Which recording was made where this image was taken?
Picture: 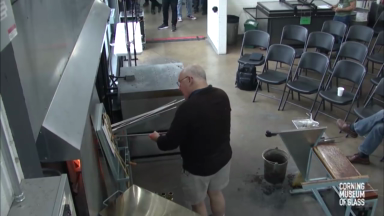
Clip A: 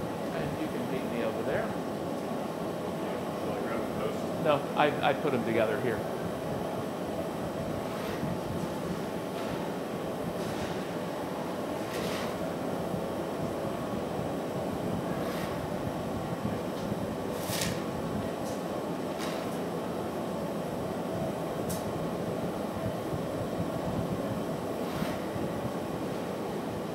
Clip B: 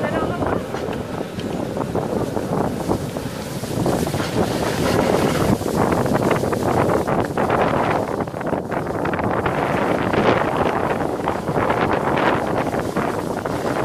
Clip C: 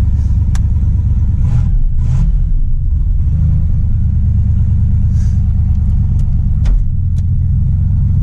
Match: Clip A